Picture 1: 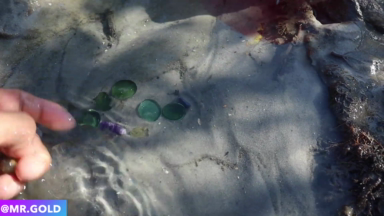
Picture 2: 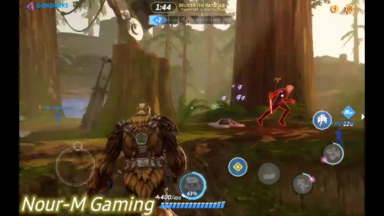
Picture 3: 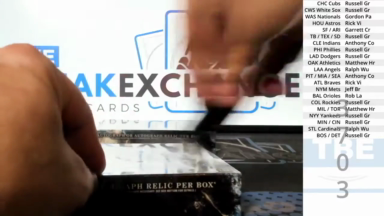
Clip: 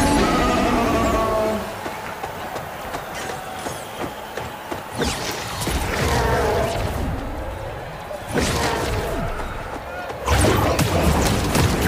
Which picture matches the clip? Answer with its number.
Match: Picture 2